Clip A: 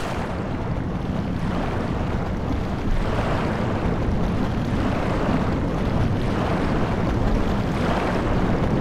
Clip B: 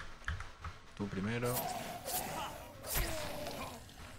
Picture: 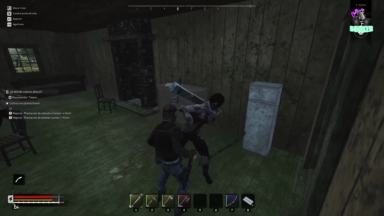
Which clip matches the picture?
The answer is B